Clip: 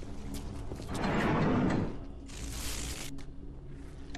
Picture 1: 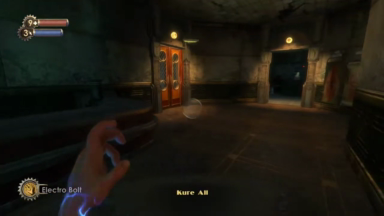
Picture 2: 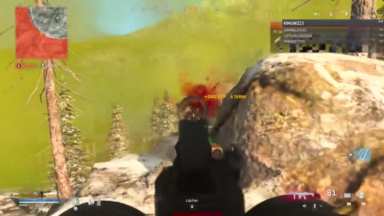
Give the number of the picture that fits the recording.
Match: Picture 1